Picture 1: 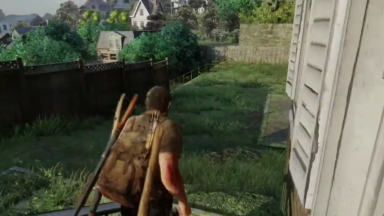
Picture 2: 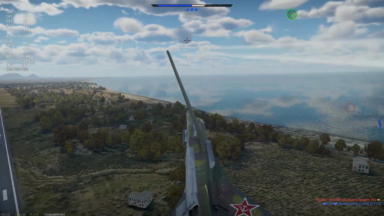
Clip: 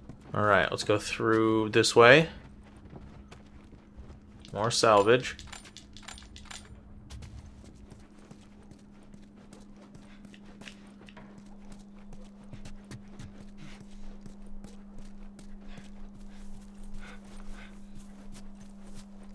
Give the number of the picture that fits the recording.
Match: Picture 1